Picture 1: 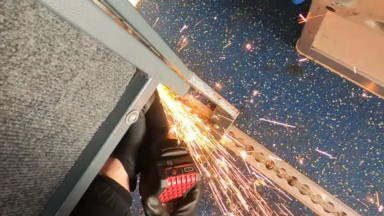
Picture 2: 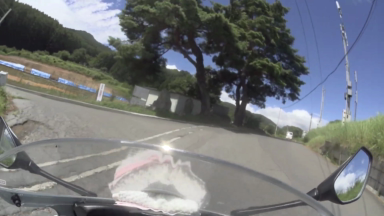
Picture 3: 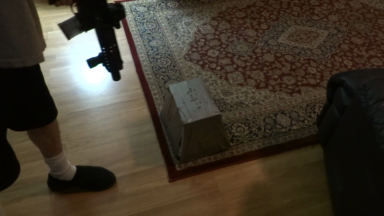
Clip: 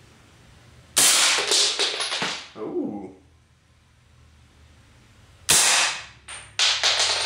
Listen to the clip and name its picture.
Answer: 3